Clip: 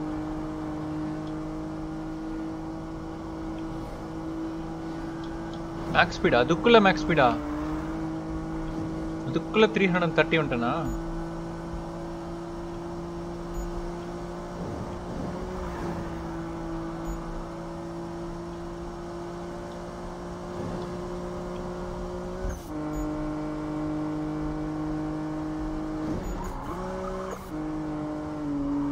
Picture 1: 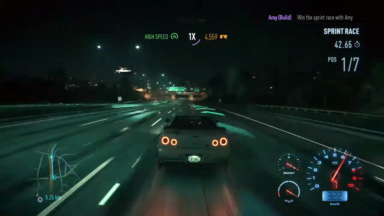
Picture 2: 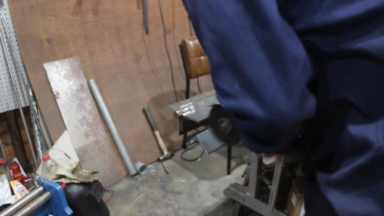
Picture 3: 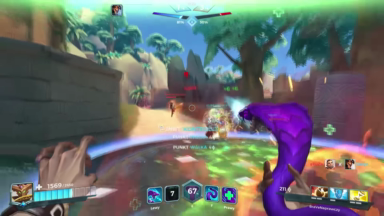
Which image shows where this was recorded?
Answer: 1